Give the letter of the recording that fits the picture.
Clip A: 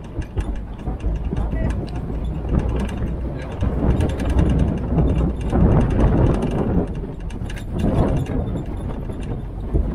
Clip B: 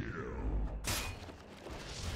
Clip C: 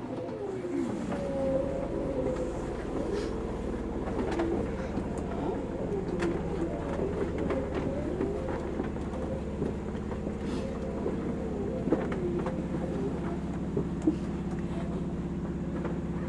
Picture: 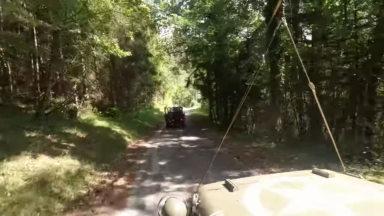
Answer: A